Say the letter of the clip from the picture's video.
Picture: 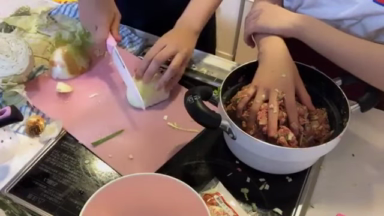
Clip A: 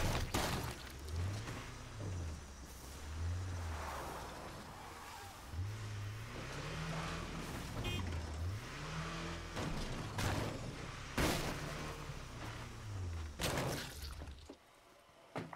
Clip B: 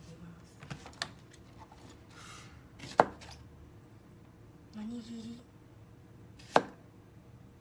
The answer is B